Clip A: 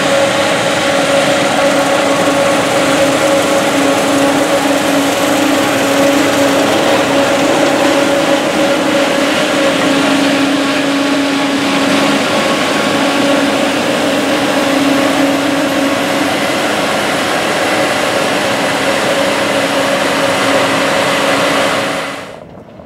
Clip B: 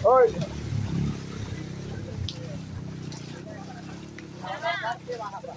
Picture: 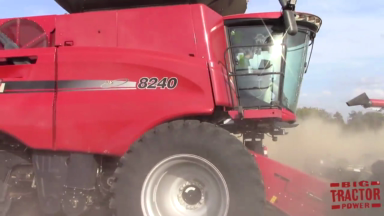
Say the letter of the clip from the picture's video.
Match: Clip A